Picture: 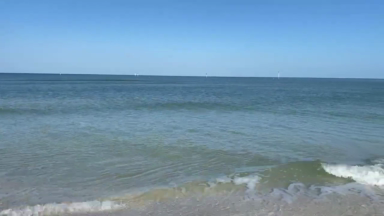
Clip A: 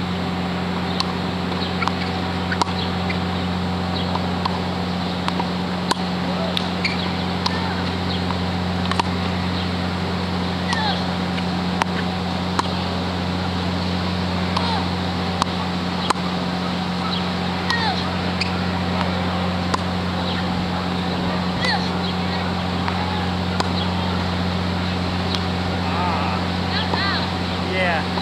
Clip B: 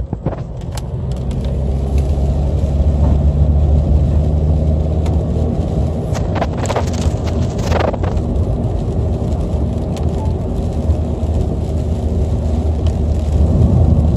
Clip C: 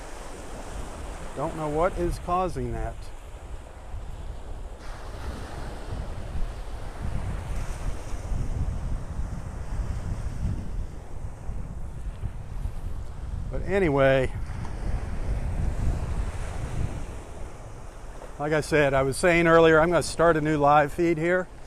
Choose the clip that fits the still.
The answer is C